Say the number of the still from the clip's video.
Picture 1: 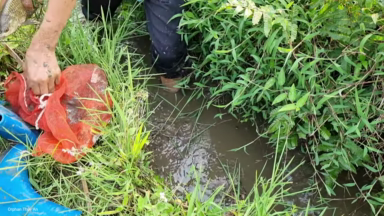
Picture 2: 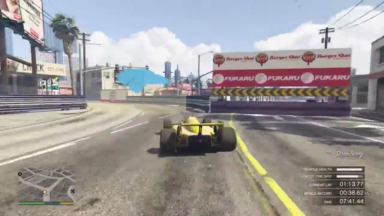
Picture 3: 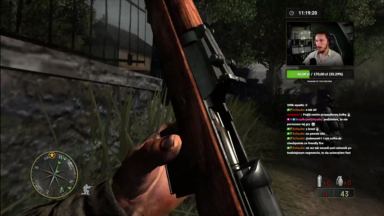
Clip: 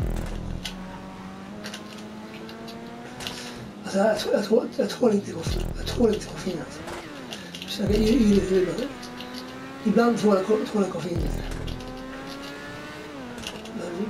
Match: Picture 2